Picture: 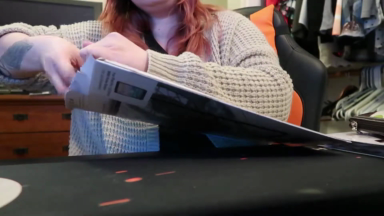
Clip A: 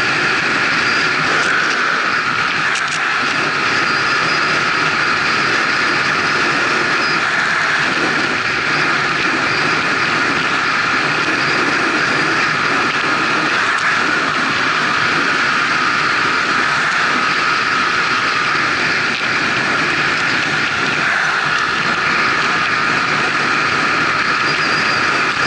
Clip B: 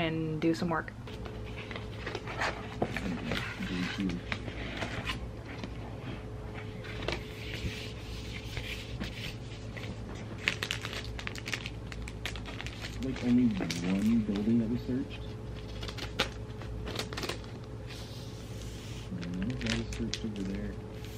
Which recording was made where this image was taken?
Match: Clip B